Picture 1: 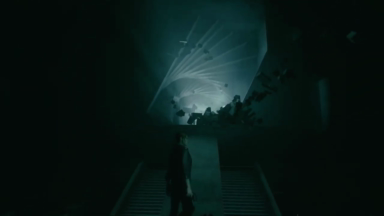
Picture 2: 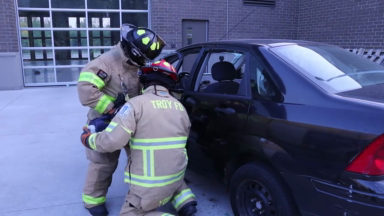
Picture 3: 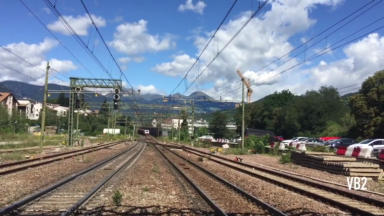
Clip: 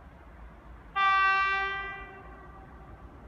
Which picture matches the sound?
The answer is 3